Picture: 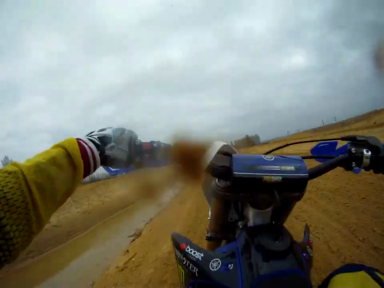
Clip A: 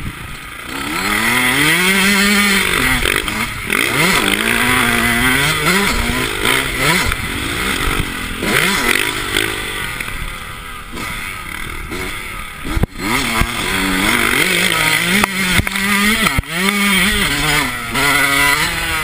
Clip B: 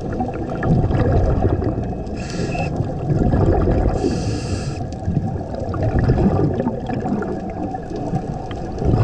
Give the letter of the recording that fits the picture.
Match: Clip A